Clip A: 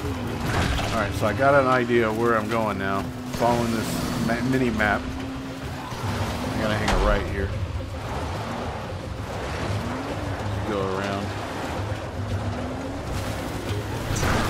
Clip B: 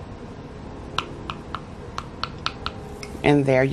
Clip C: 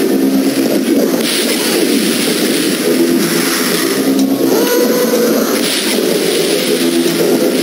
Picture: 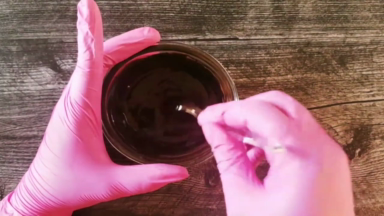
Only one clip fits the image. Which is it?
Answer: B